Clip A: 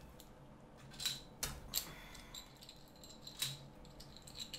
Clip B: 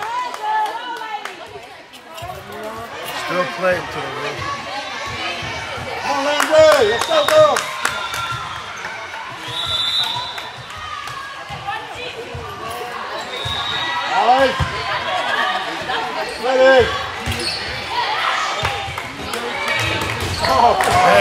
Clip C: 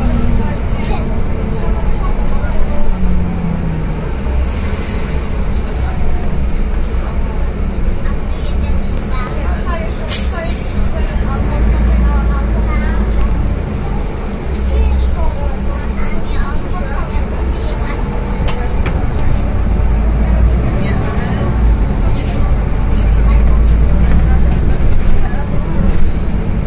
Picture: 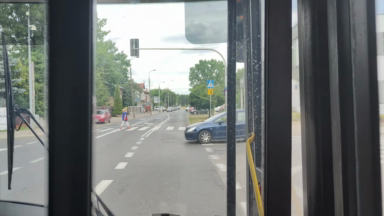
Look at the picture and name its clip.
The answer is C